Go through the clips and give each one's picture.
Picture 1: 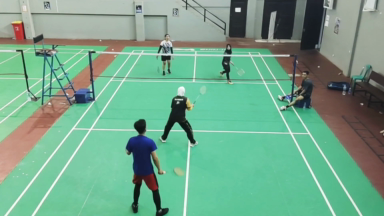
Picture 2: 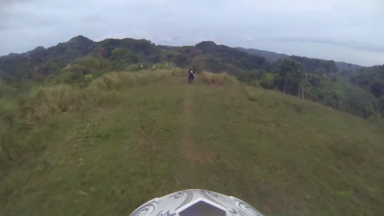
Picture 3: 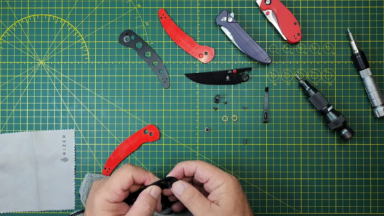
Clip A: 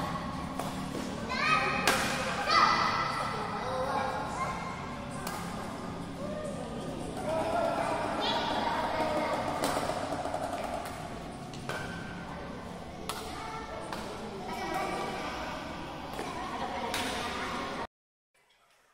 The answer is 1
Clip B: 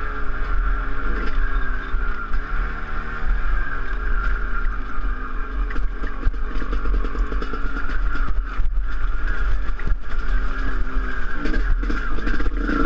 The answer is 2